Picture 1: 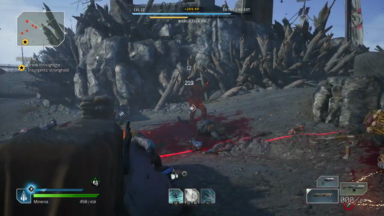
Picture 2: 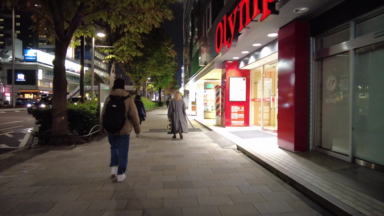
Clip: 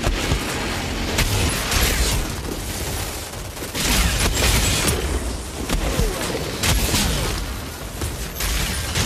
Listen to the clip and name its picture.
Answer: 1